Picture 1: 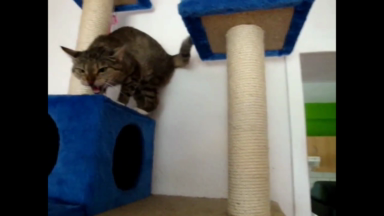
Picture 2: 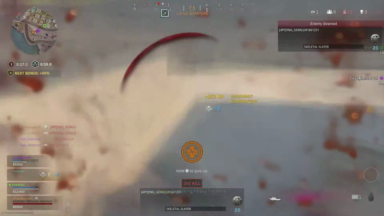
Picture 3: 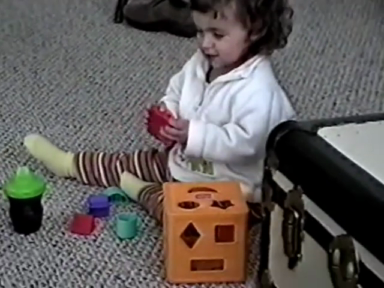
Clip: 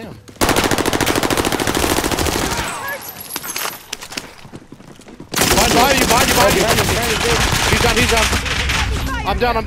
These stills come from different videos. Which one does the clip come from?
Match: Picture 2